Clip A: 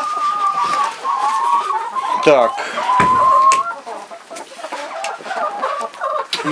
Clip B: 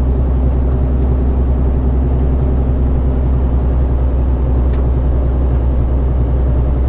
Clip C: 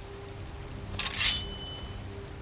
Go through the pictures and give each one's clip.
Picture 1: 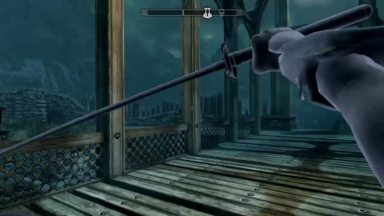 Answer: C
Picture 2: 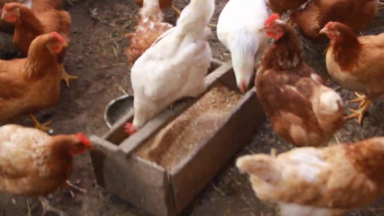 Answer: A